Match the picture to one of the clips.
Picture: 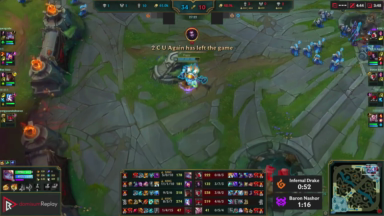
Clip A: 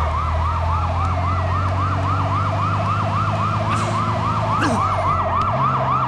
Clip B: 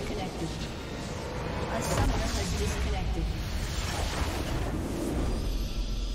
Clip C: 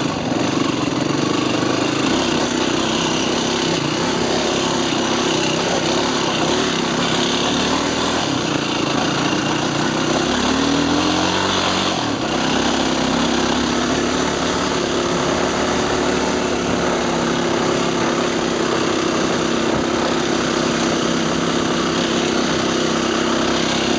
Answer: B